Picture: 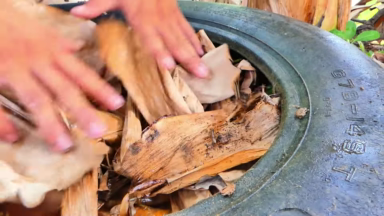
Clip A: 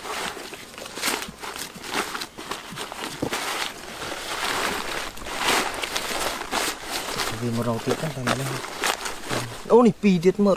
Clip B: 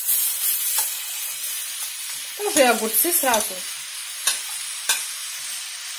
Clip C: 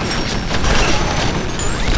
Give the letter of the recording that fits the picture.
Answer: A